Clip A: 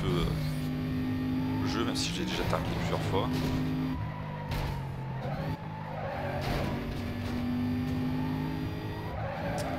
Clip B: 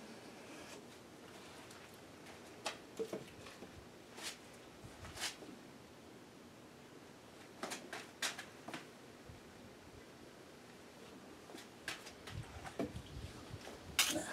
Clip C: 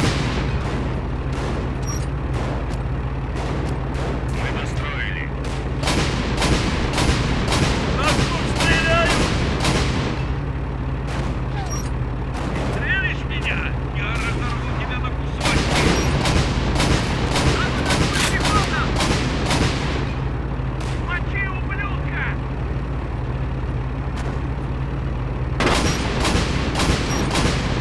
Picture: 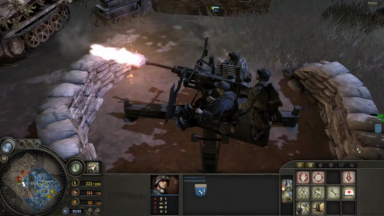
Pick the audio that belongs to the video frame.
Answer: C